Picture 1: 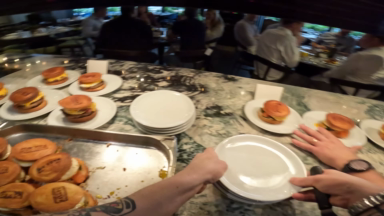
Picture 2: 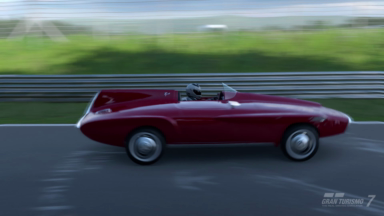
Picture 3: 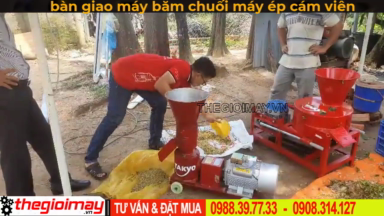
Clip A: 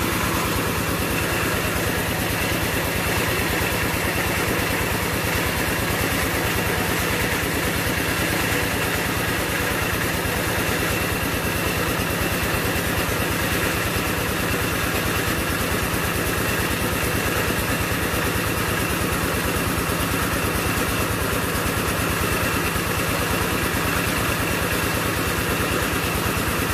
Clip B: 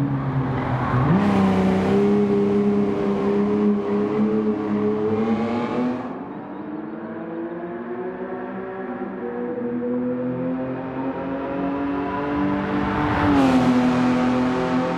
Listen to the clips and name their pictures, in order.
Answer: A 3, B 2